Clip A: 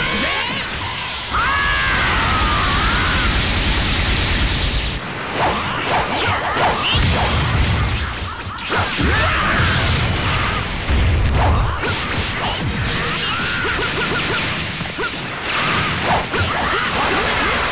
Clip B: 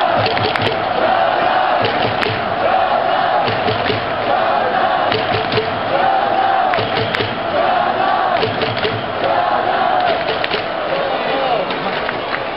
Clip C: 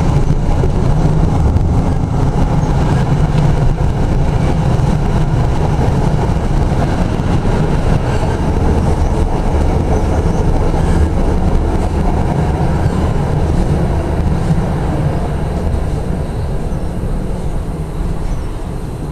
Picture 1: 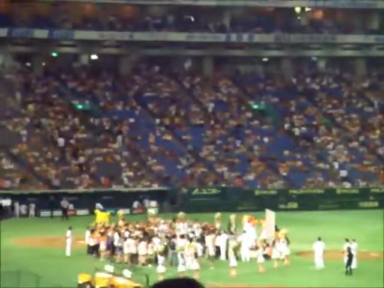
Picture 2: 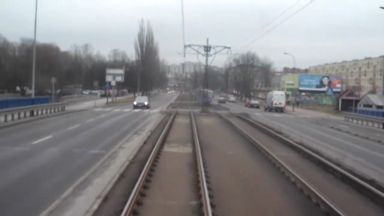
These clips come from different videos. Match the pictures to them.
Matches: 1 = B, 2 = C